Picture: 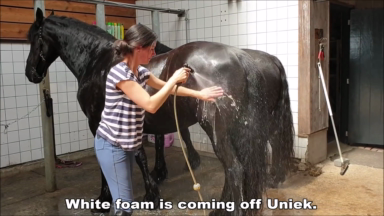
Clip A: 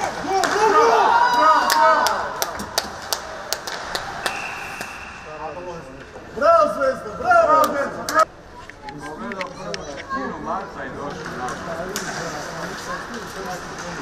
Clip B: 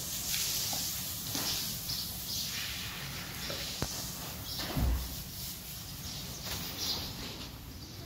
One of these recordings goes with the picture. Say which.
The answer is B